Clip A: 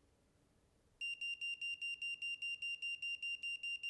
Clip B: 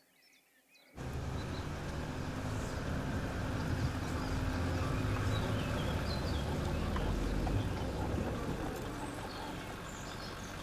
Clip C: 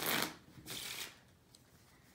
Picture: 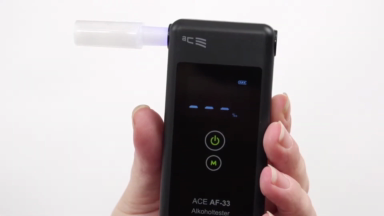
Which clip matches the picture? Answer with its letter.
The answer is A